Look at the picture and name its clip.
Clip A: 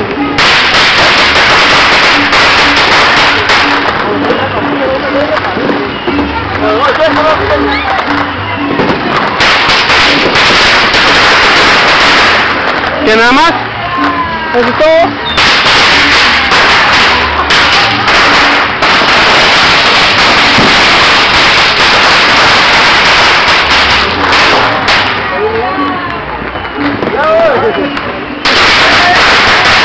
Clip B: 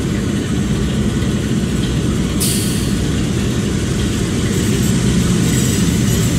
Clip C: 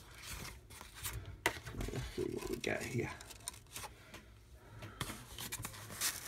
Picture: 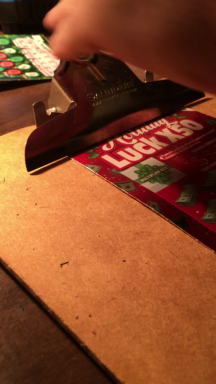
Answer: C